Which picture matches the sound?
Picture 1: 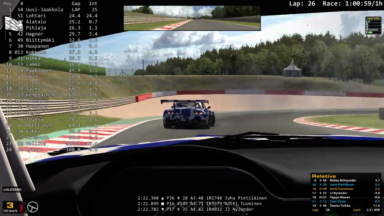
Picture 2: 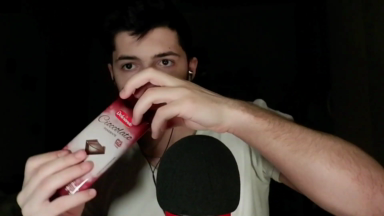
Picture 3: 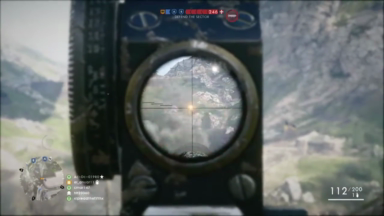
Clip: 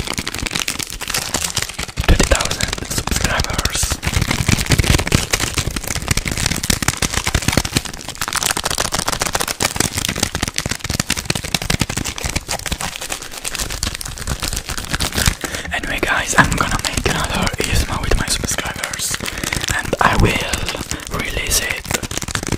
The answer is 2